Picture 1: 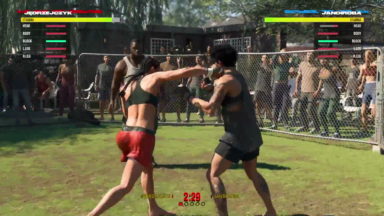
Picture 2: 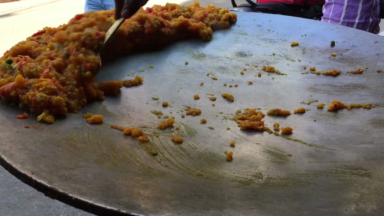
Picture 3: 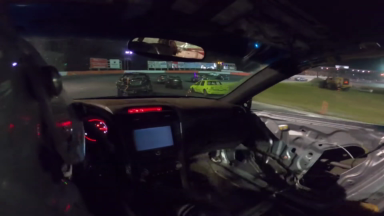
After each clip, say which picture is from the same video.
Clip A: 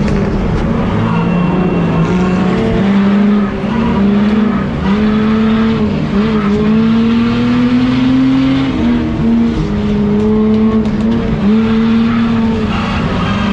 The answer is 3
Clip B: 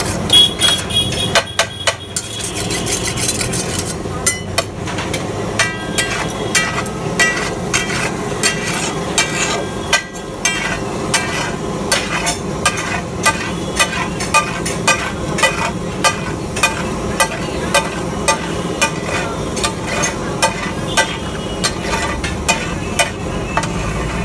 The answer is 2